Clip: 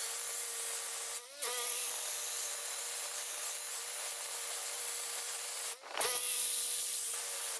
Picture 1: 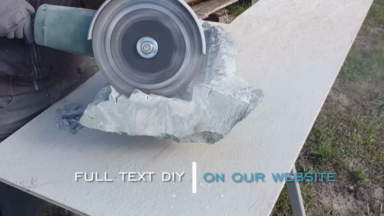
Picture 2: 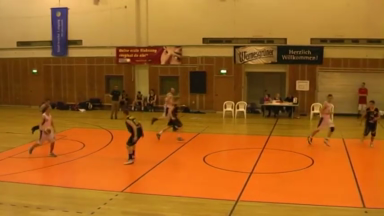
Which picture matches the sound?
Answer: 1